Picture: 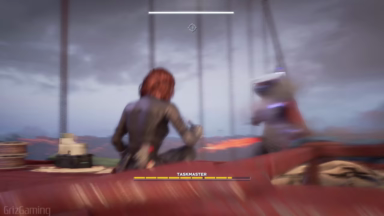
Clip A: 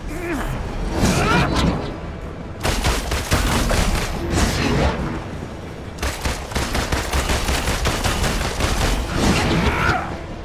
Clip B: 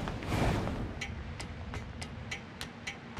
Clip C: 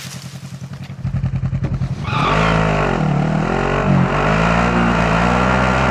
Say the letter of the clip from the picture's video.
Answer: A